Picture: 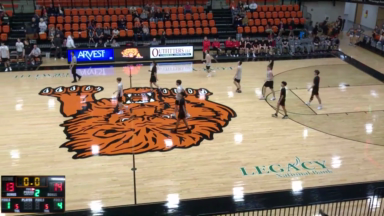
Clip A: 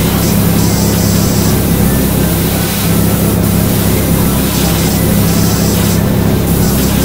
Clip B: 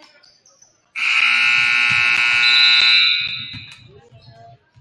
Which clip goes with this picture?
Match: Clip B